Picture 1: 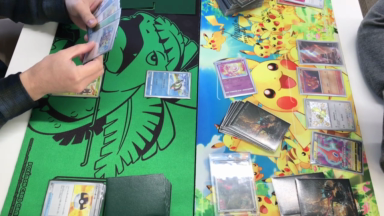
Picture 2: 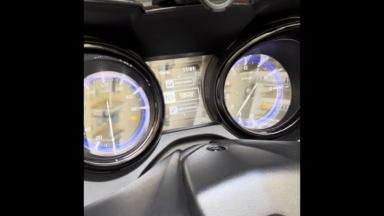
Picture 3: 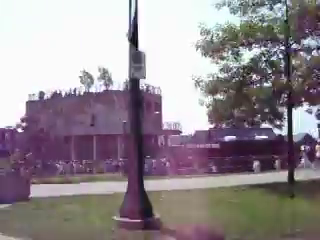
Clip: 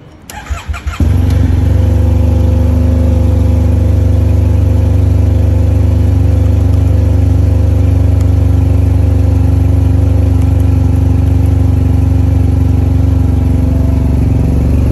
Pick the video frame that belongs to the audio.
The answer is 2